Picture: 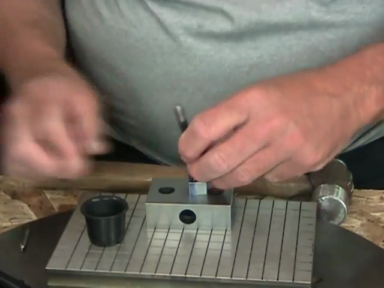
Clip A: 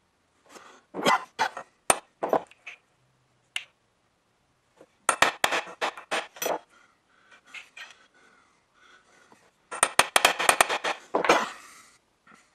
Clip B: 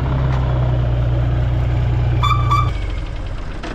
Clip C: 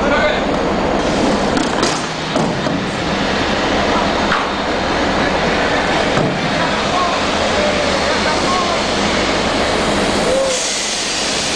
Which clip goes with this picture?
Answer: A